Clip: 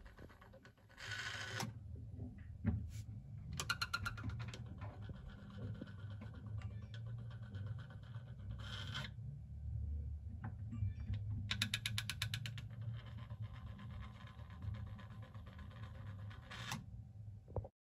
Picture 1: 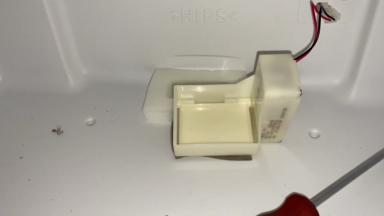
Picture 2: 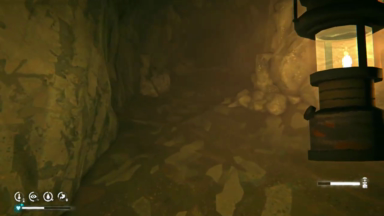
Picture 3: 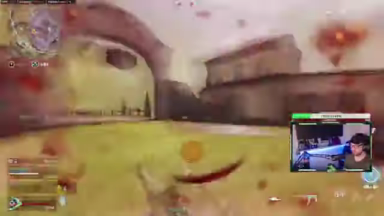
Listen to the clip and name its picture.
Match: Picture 1